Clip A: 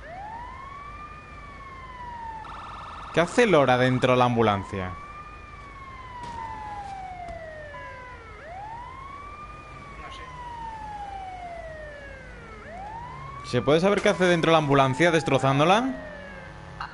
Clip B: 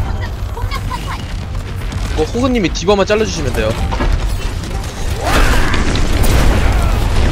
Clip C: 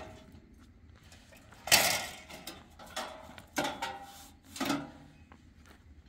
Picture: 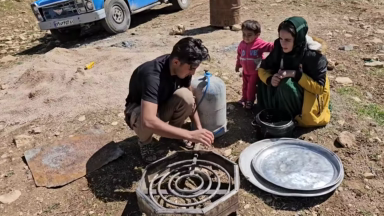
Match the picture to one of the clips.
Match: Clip C